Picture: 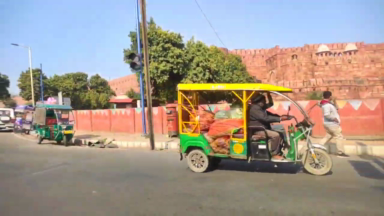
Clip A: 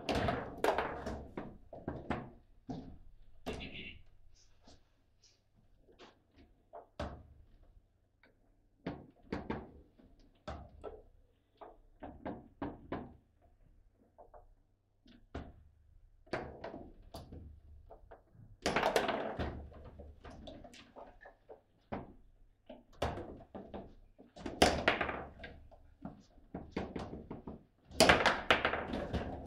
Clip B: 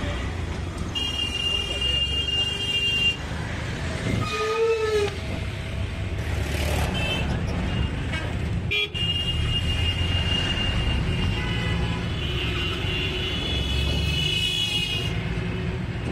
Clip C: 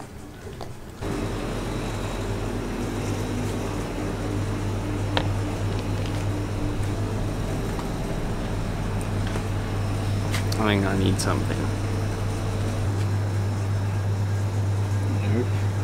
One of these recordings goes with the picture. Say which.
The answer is B